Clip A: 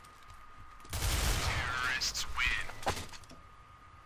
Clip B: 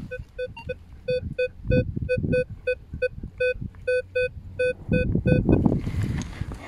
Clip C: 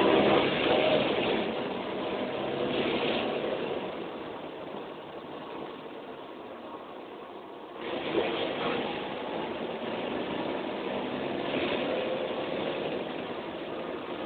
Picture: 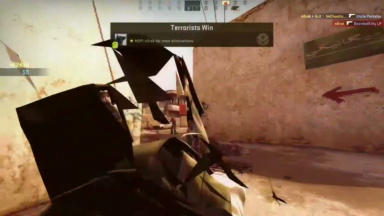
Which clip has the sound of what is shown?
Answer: A